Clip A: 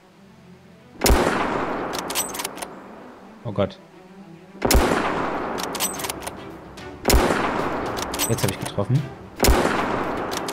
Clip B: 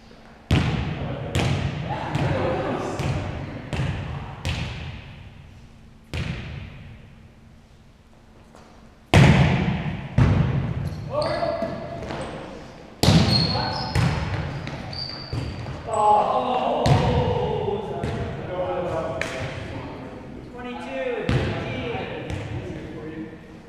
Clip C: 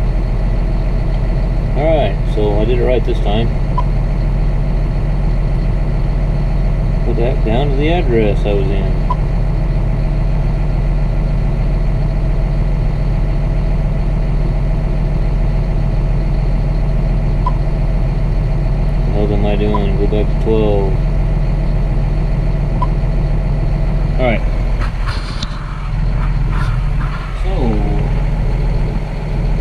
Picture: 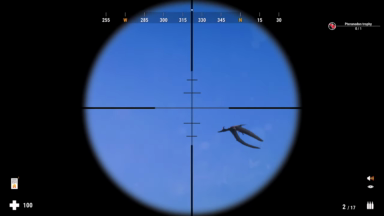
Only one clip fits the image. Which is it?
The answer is A